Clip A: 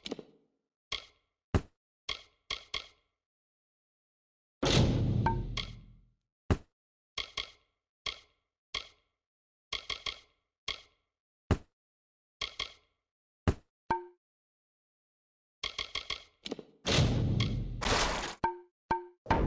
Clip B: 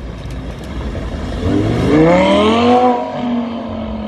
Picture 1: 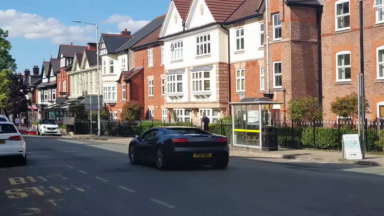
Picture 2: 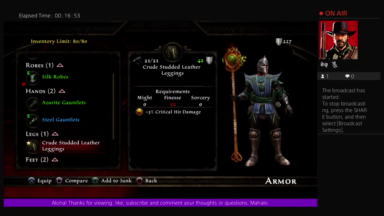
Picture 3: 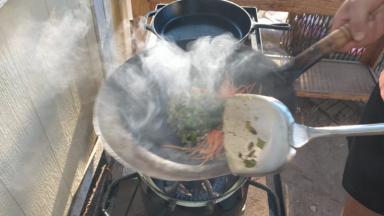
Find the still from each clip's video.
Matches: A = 2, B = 1